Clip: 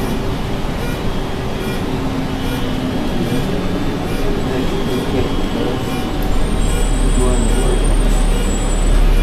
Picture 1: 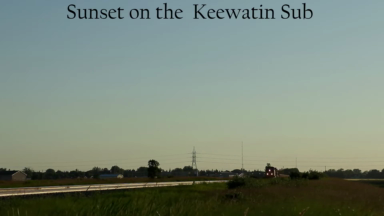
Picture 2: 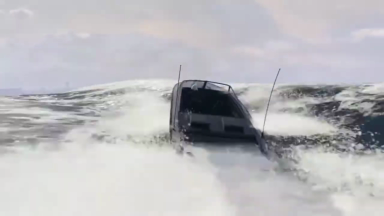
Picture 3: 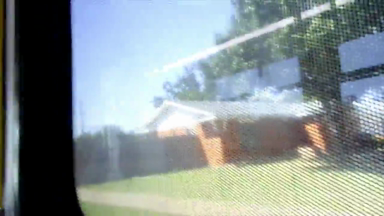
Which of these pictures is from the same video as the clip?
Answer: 3